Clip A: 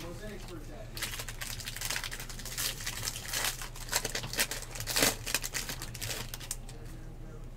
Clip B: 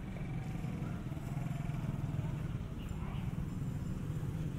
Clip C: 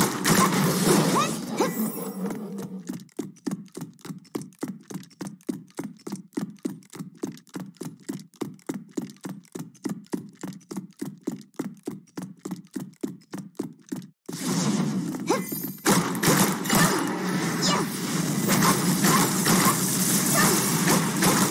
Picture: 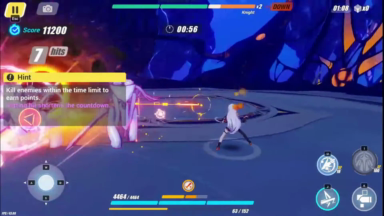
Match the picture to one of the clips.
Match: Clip C